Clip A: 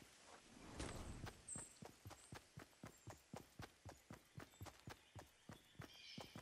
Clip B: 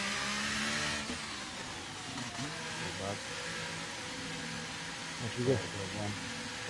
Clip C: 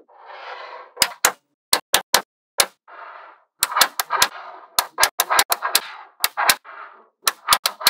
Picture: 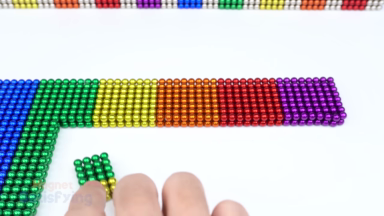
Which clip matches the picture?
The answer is C